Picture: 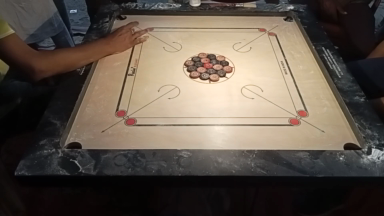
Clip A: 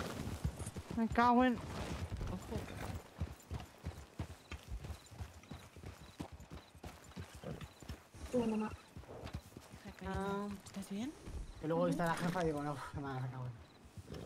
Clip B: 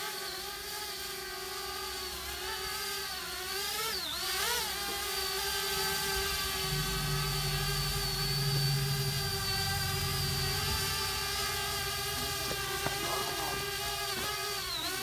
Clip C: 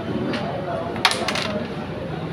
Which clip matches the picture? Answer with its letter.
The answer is C